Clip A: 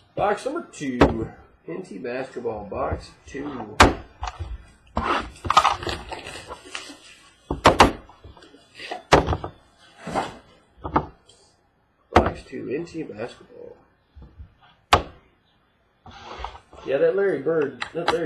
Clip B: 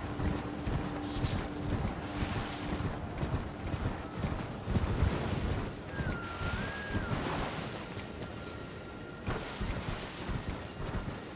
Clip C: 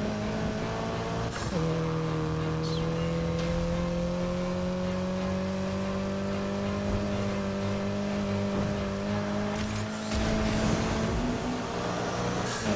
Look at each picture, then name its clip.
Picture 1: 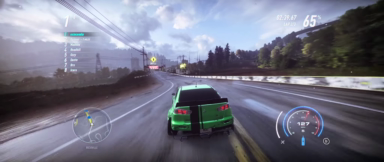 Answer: C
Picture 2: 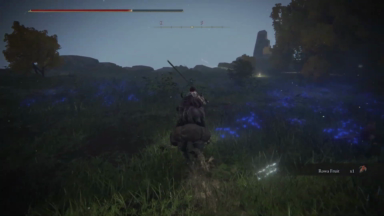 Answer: B